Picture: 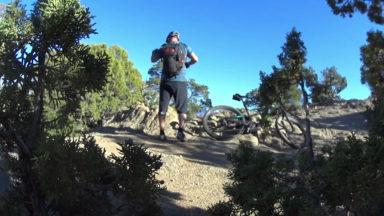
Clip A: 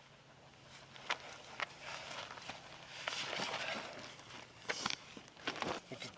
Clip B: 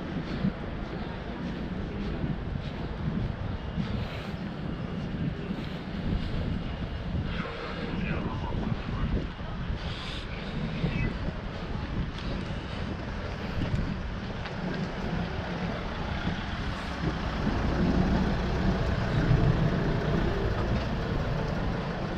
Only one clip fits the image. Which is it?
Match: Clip A